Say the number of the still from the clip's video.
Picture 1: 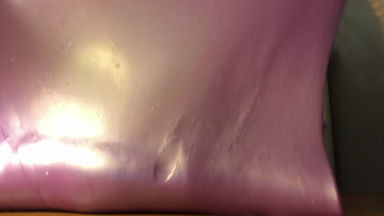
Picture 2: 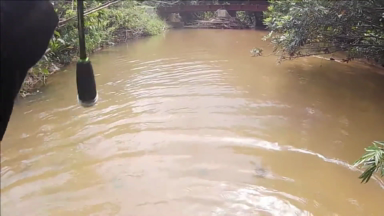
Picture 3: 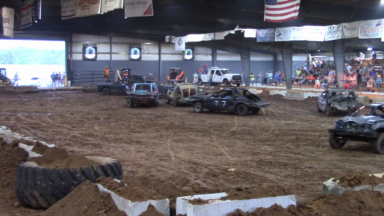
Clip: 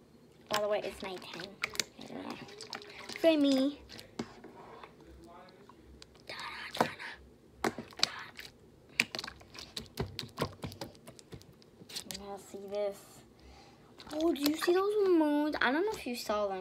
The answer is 1